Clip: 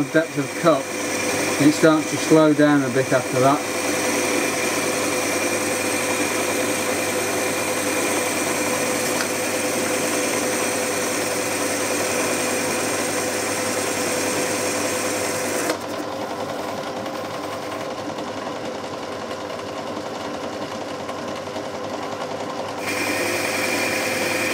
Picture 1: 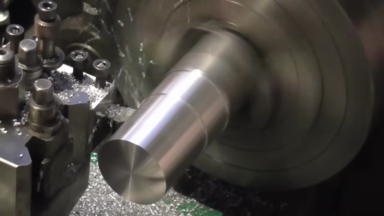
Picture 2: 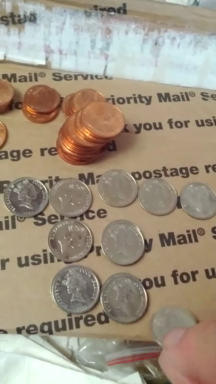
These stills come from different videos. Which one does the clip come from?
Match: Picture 1